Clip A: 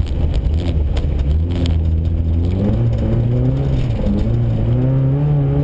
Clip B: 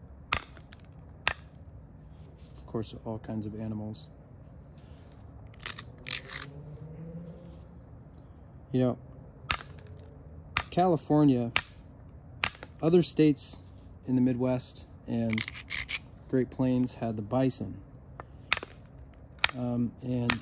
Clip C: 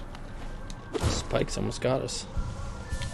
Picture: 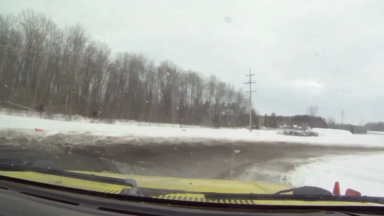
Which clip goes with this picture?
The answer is A